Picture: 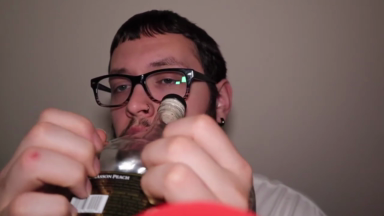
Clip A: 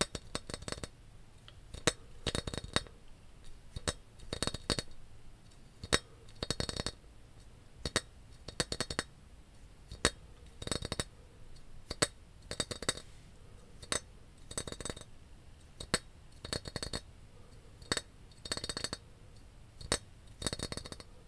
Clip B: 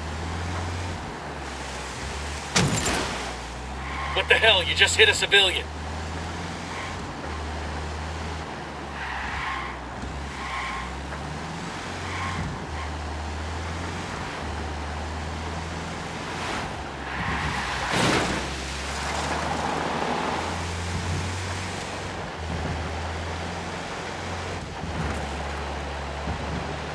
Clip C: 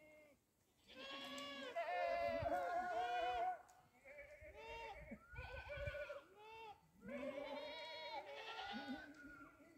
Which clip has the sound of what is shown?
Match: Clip A